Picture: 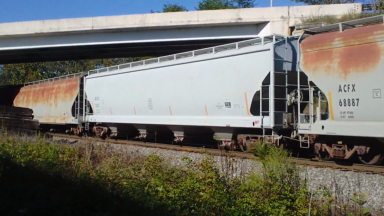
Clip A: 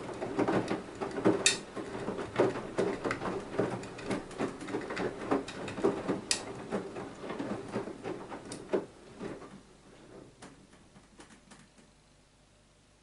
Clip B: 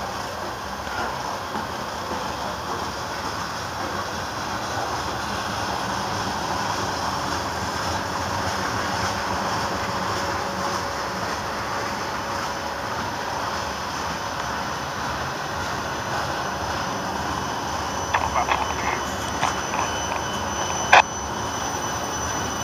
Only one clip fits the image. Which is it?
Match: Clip B